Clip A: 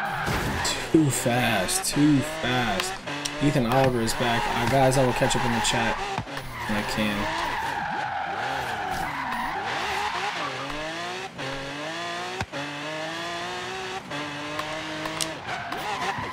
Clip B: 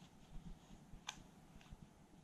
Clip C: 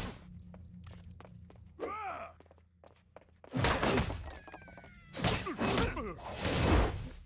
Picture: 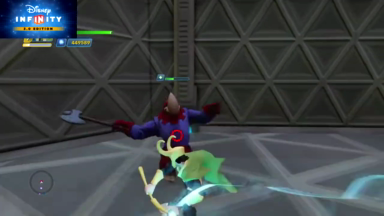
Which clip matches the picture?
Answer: C